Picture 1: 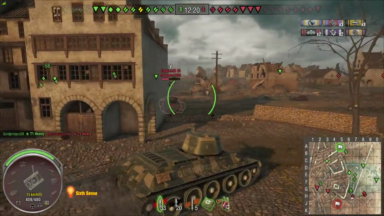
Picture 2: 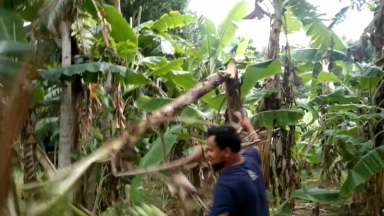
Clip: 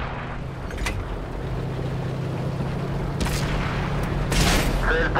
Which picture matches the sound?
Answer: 1